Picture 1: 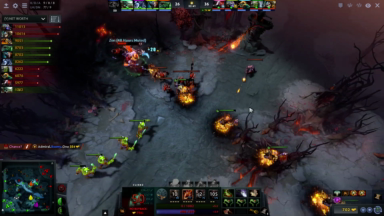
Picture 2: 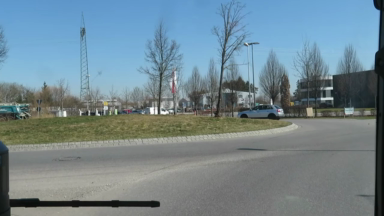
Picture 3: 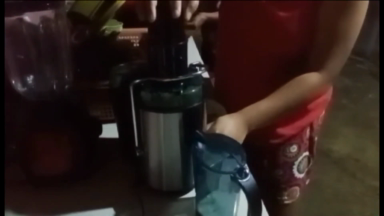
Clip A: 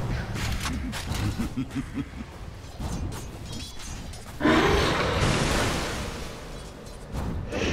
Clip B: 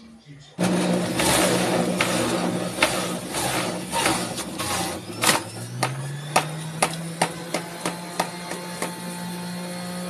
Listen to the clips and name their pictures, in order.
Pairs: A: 1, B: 3